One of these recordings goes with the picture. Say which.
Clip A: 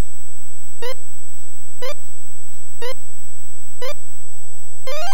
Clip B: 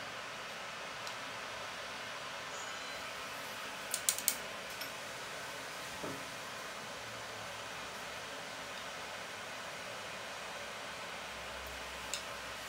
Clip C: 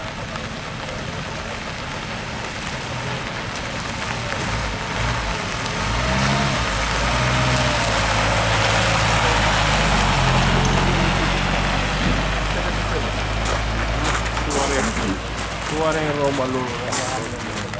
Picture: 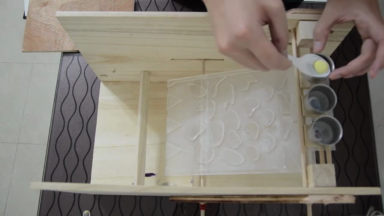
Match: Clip B